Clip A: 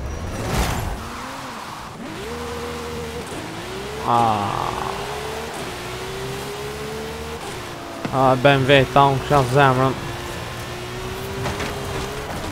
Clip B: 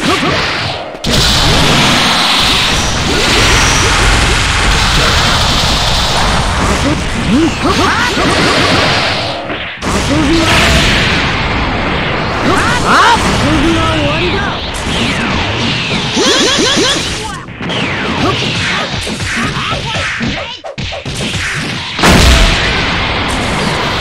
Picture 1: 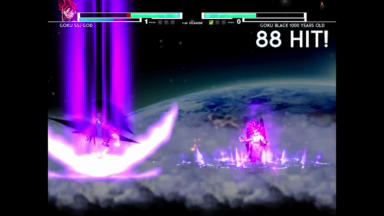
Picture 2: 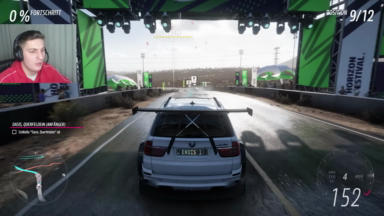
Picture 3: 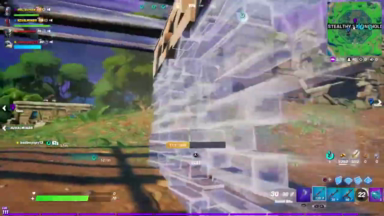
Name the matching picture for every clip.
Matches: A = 2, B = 1